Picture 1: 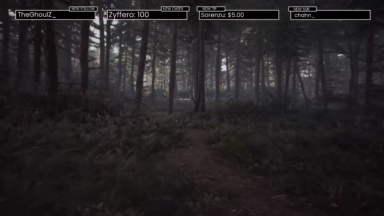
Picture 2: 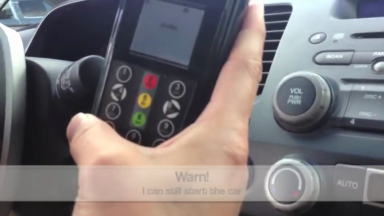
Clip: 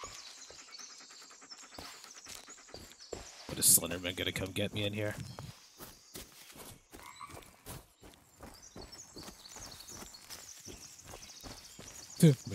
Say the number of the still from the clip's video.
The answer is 1